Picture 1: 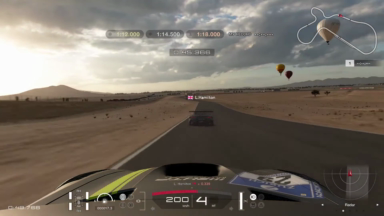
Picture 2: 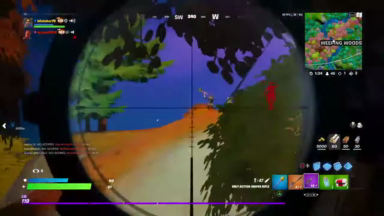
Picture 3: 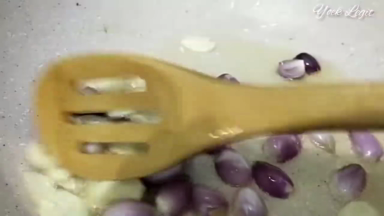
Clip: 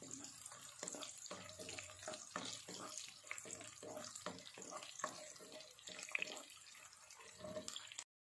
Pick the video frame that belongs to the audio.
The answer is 3